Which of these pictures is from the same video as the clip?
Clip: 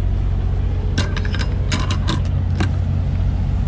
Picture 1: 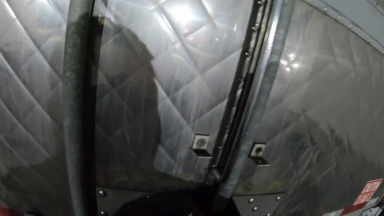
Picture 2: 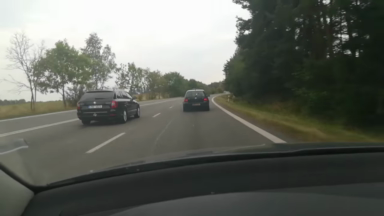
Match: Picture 1